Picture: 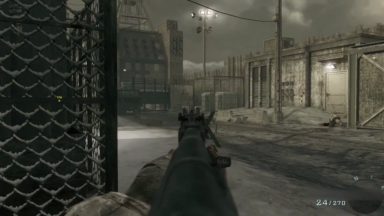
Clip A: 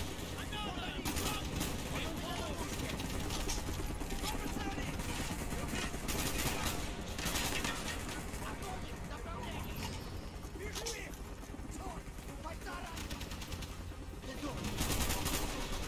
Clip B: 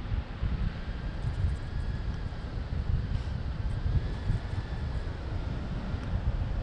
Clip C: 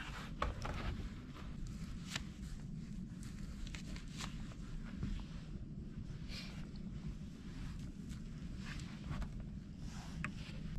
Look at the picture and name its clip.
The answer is A